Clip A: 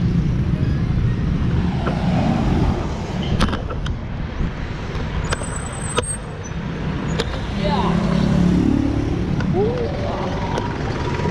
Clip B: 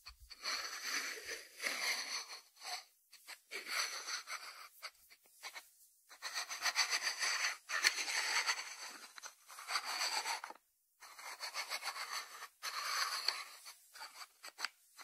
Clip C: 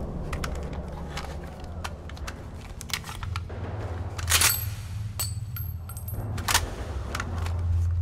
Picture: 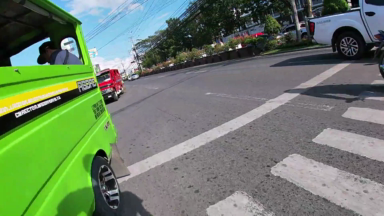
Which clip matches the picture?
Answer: A